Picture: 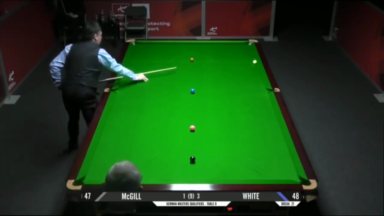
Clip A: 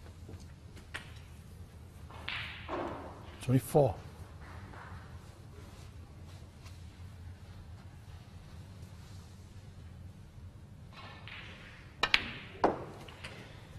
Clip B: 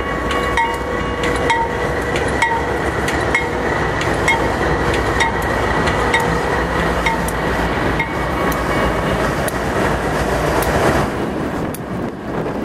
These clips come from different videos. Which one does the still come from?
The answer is A